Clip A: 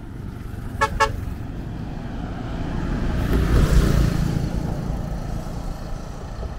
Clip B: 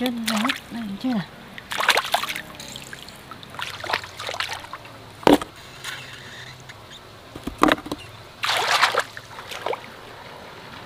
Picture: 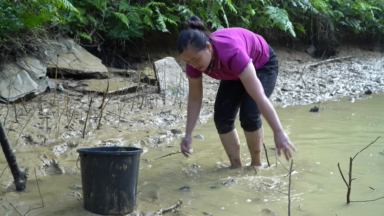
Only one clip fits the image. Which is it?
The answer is B